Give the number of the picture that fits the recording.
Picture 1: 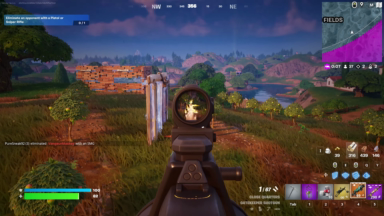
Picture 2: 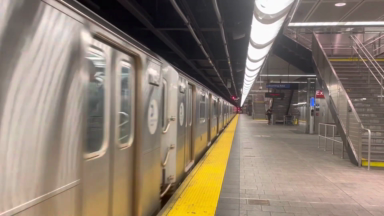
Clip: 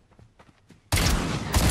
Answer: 1